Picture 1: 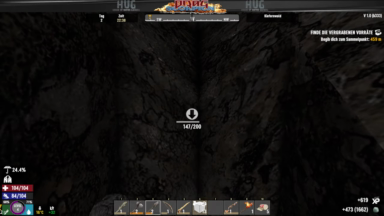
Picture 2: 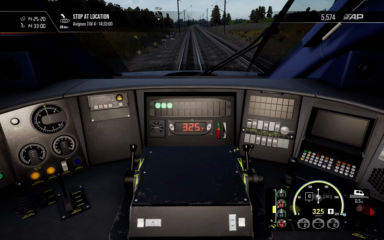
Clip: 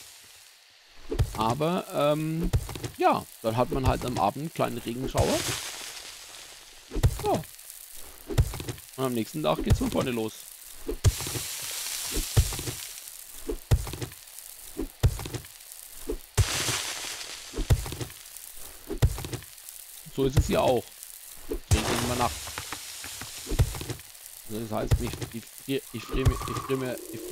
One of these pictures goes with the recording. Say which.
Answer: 1